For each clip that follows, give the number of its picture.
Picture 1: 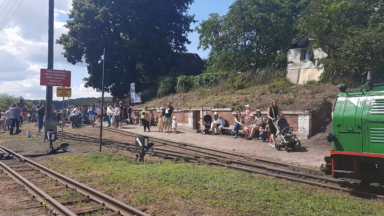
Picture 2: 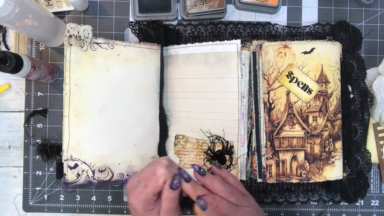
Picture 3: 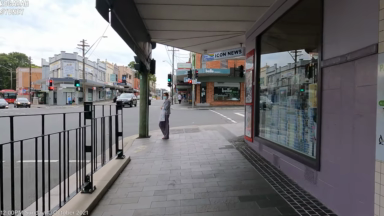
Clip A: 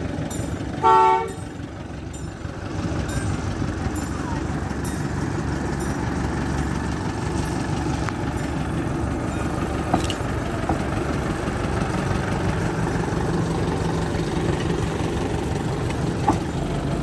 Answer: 1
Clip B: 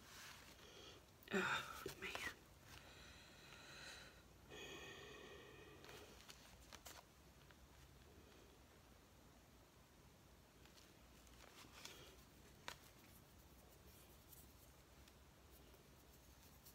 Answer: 2